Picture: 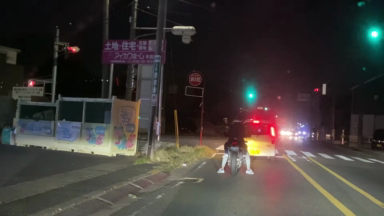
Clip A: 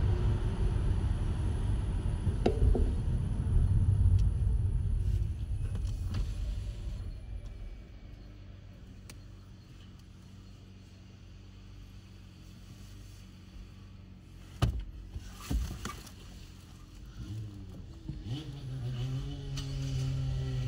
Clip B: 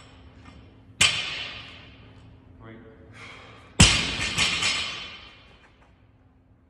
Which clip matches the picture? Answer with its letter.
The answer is A